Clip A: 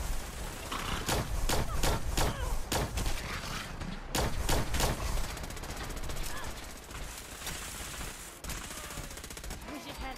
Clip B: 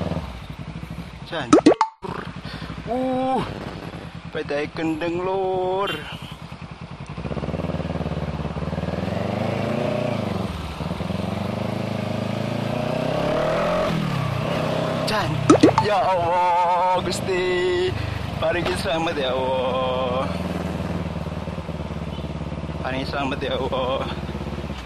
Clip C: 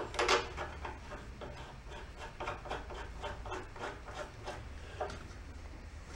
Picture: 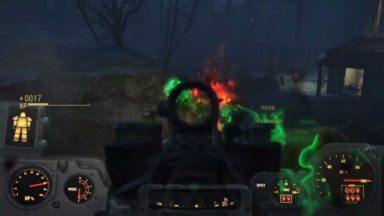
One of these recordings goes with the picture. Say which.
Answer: A